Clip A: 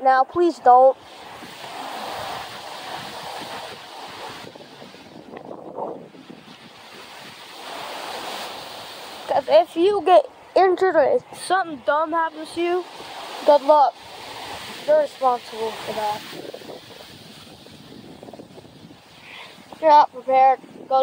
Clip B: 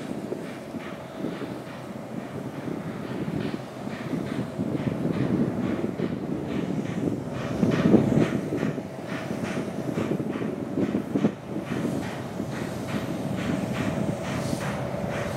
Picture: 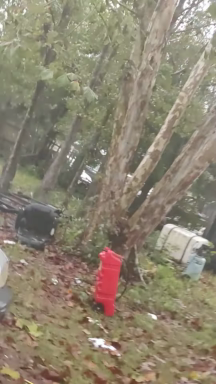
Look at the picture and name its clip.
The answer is A